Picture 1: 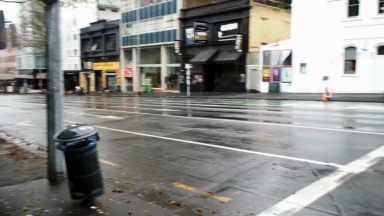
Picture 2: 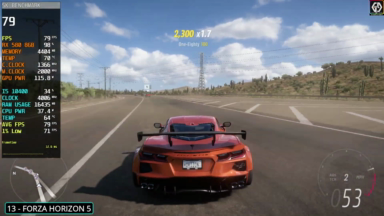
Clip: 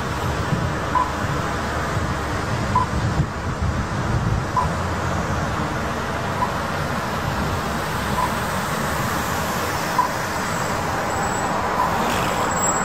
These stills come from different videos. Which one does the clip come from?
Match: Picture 1